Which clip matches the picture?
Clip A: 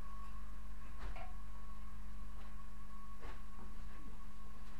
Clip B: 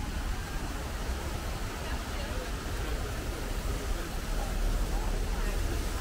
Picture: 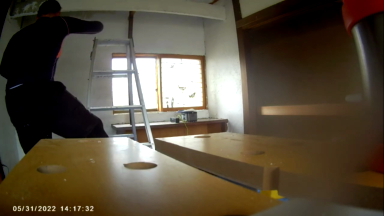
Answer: A